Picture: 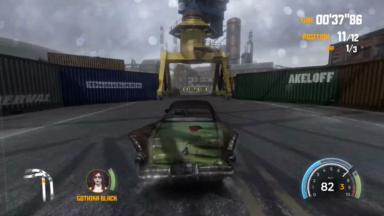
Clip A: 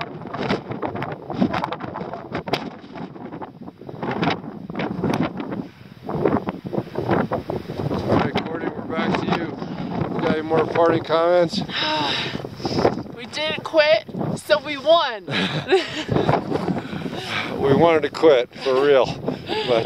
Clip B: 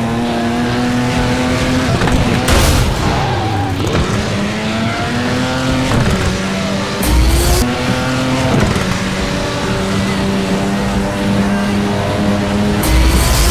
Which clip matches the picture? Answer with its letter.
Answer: B